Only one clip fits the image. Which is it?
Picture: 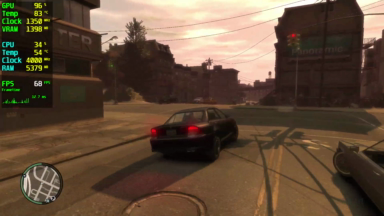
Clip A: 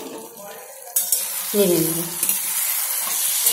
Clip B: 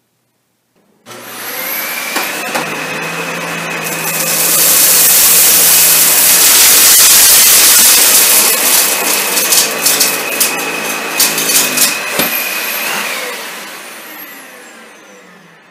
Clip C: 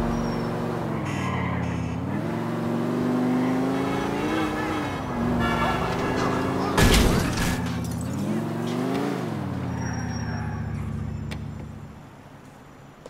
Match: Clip C